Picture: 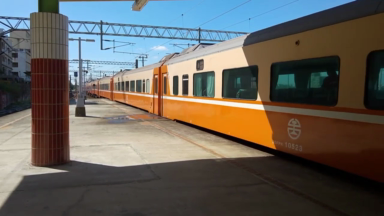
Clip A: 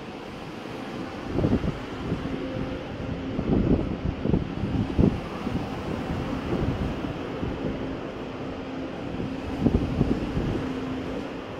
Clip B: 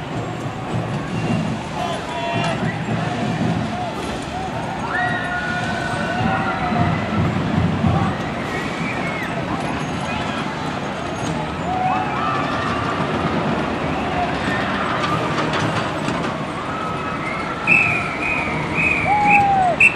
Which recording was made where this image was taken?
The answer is A